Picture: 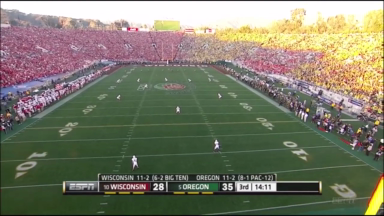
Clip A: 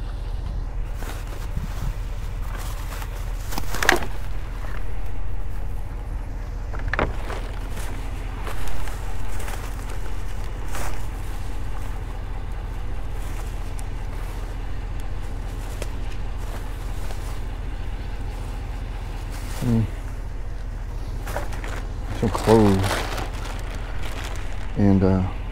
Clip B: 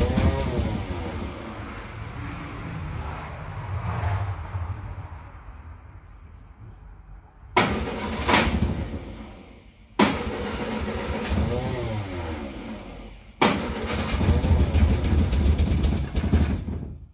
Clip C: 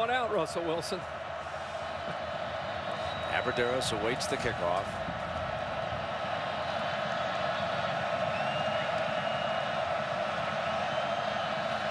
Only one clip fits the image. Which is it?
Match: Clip C